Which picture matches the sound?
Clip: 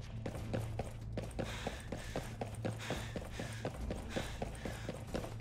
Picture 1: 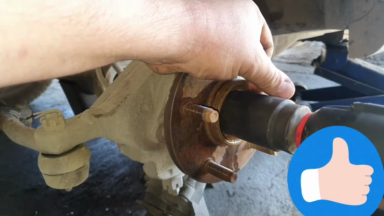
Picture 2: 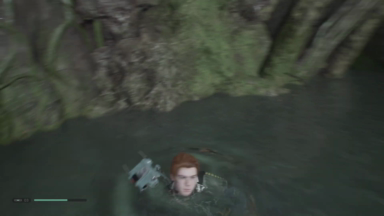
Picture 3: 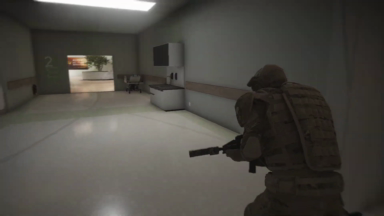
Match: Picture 3